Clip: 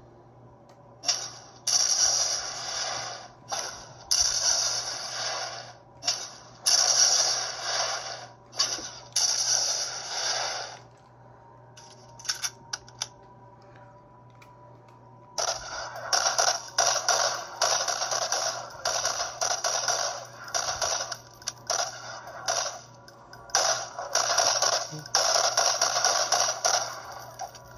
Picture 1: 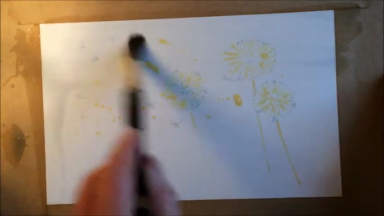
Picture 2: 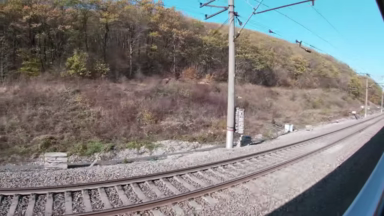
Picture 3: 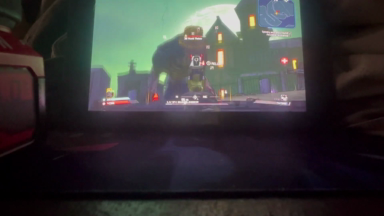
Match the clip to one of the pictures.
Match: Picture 3